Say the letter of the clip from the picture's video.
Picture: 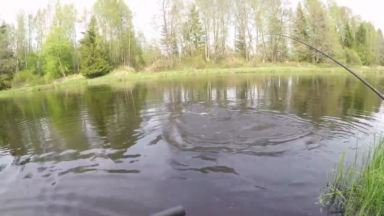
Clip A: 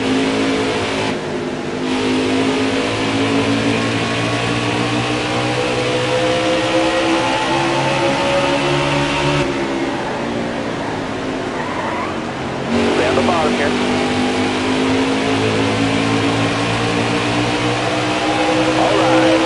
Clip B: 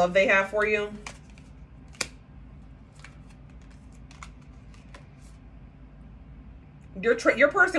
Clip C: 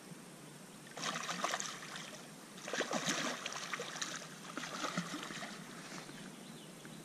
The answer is C